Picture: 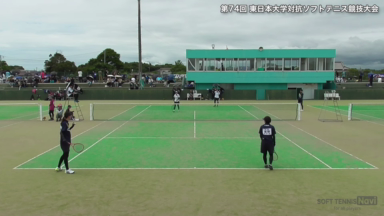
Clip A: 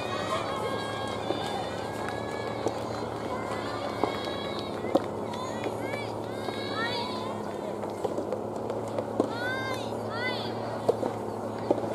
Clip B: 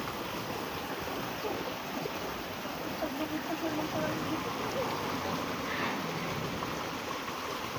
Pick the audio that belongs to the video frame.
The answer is A